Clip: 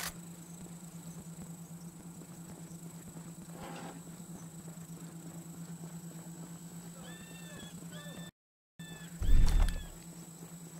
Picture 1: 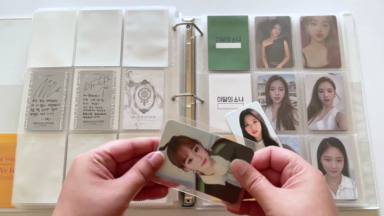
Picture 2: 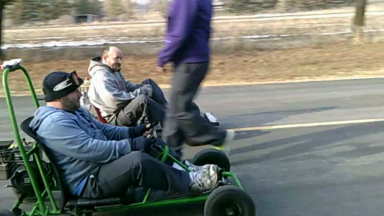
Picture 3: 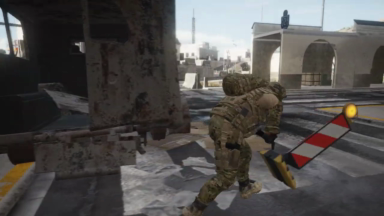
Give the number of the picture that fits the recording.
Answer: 3